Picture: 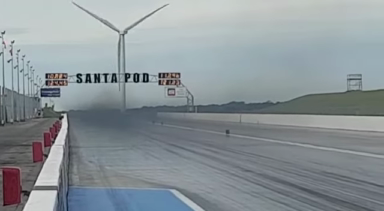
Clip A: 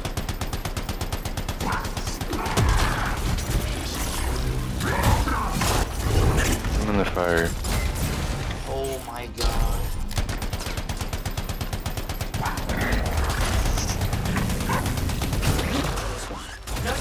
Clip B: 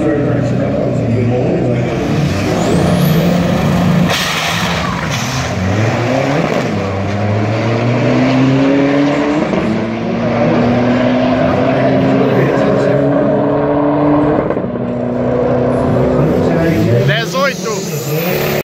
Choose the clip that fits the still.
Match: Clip B